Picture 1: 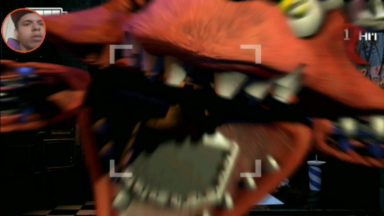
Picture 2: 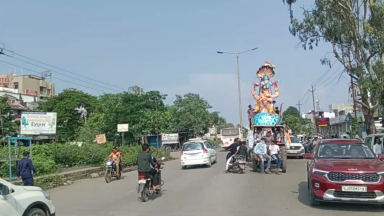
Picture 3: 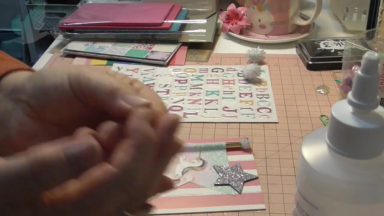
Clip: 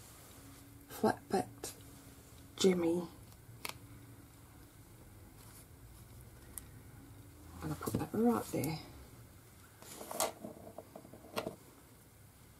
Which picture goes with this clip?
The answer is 3